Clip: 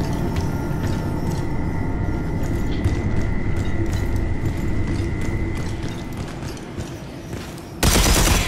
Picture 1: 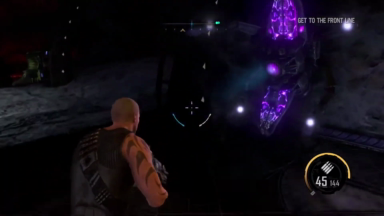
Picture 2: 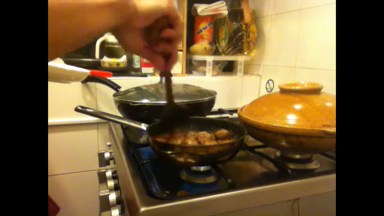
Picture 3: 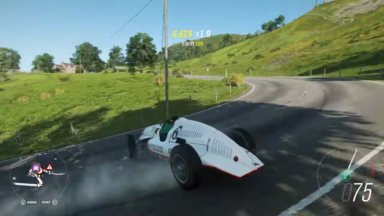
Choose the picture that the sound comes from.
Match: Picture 1